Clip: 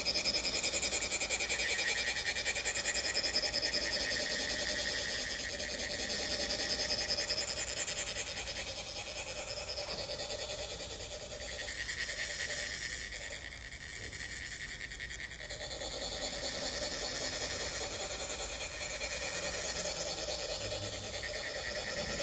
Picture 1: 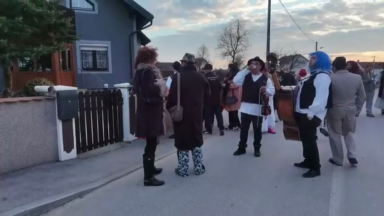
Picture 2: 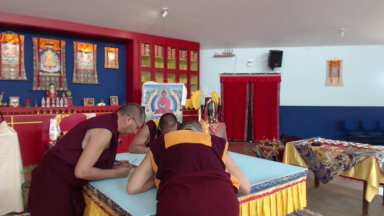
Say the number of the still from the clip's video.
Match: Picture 2